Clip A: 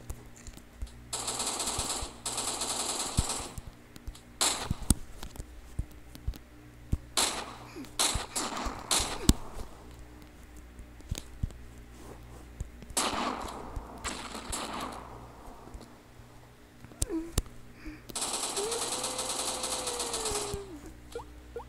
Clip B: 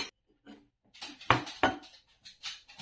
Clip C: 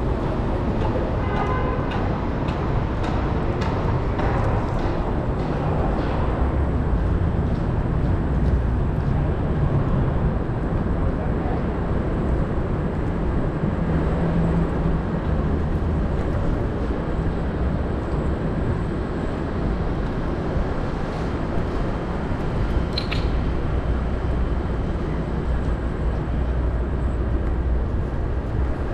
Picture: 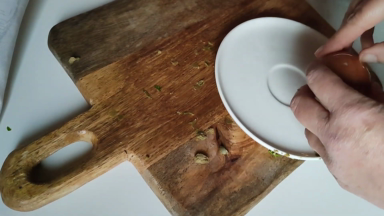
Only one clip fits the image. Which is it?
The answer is B